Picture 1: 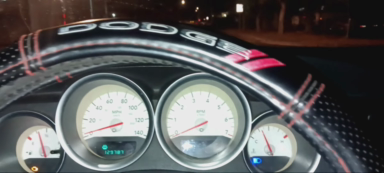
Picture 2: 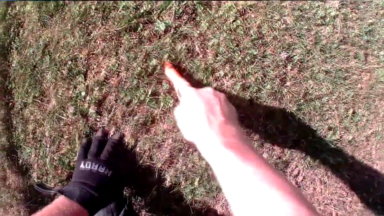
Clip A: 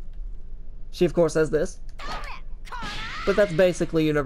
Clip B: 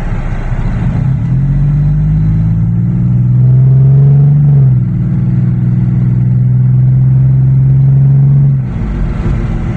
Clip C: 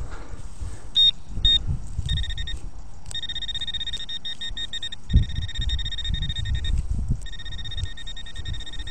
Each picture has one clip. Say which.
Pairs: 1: B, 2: C